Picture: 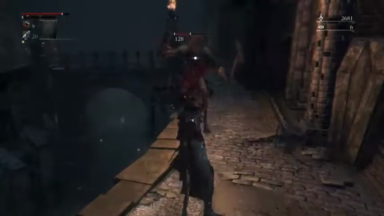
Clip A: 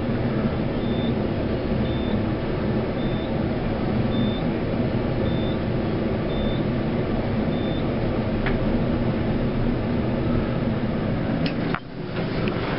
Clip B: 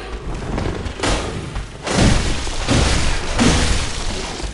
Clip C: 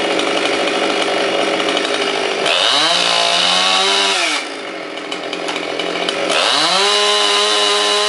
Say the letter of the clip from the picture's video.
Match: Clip B